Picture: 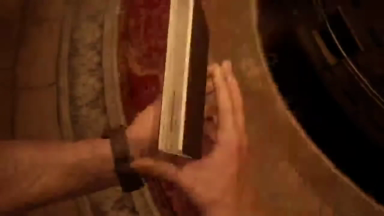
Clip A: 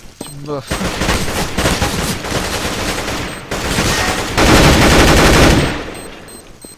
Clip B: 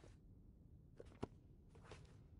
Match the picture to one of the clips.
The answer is B